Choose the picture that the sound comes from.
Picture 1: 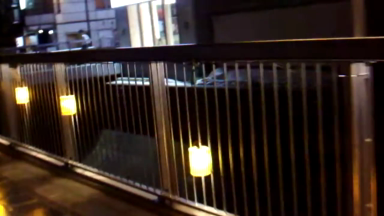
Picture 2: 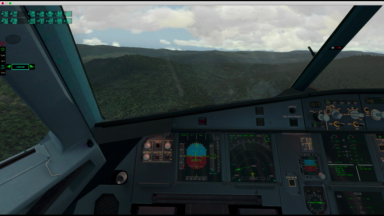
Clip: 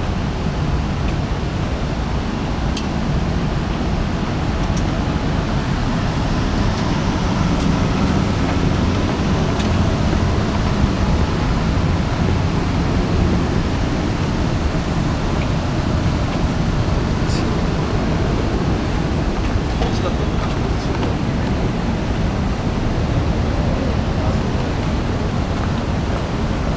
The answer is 1